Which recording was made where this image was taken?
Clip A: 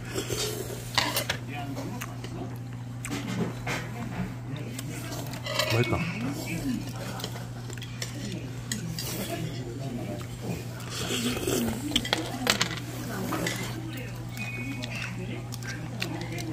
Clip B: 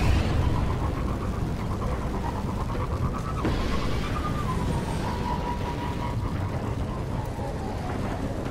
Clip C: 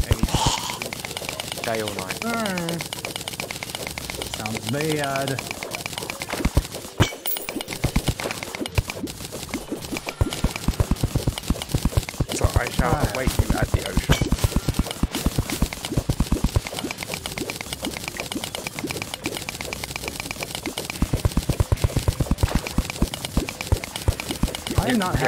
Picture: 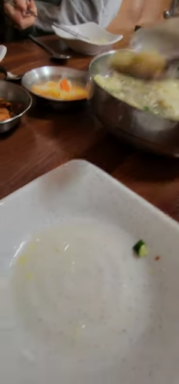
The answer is A